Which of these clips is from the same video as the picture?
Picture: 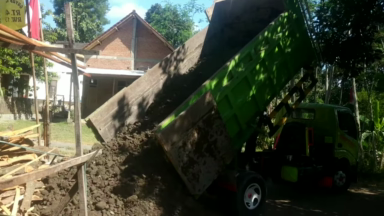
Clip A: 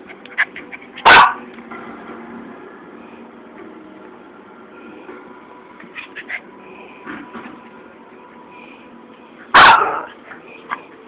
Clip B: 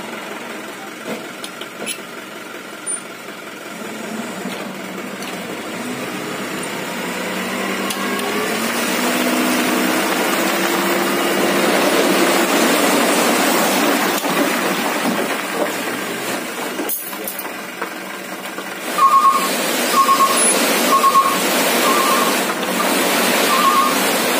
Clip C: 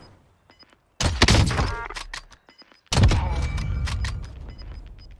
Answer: B